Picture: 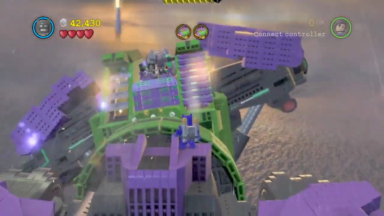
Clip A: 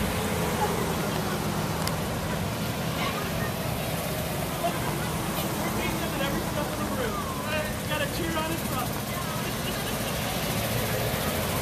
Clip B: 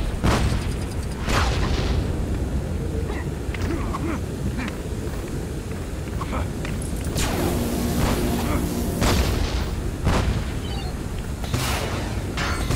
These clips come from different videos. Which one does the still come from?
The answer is B